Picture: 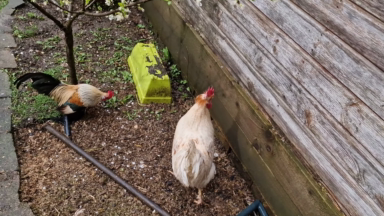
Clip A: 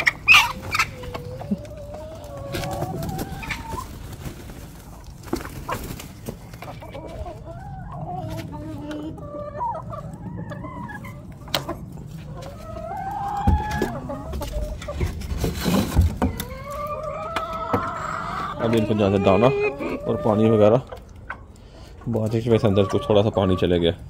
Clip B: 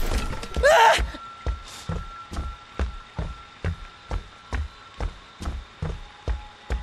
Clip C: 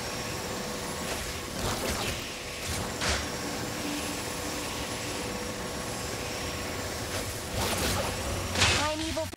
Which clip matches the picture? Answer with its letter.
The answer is A